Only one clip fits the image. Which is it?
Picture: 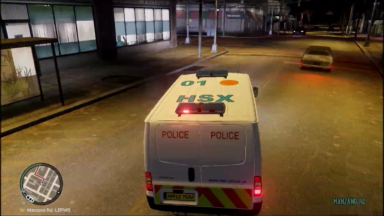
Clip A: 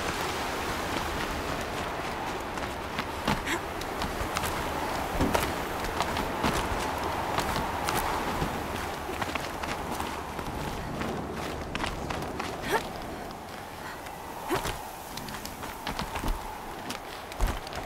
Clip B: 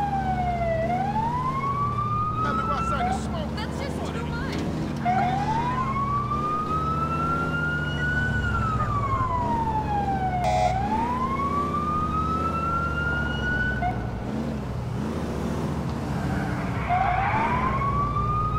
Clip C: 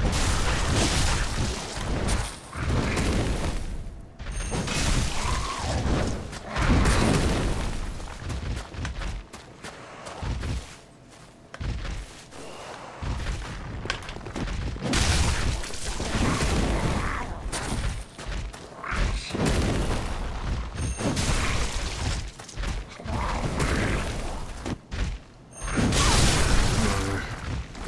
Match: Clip B